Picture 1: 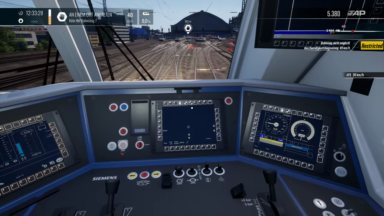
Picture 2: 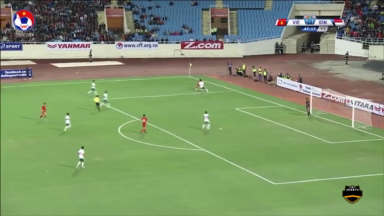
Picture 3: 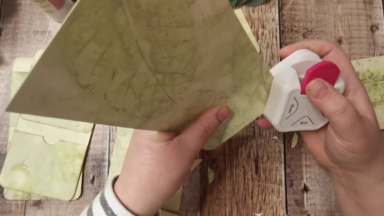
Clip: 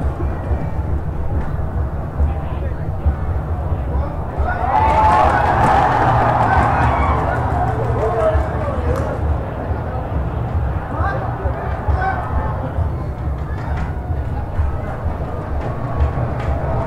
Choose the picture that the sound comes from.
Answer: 2